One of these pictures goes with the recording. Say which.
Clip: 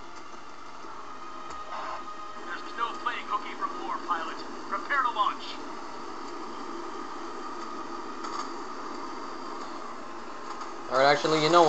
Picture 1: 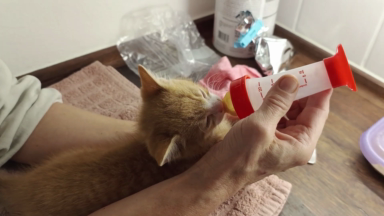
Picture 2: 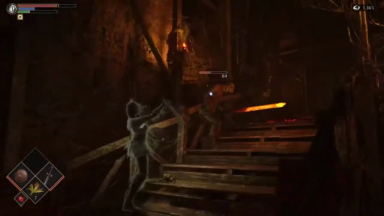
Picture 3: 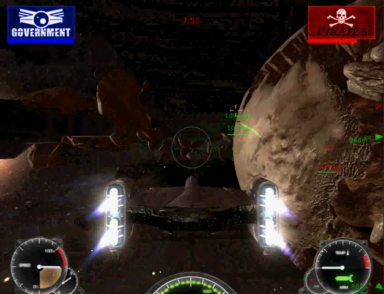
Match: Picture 3